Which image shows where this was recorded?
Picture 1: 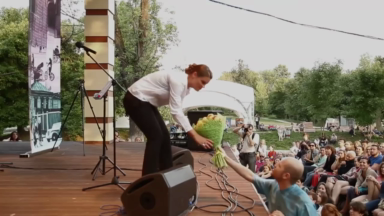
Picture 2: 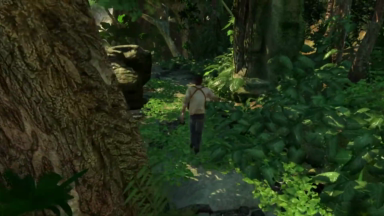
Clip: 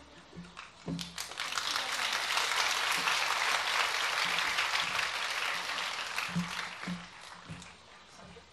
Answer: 1